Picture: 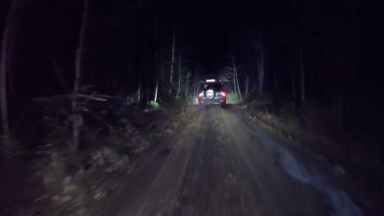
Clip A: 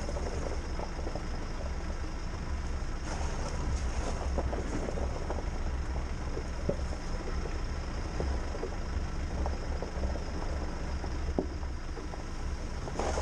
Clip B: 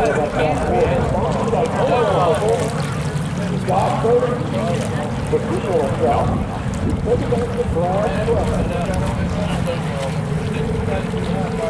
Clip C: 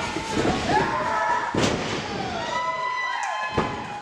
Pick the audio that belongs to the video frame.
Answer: A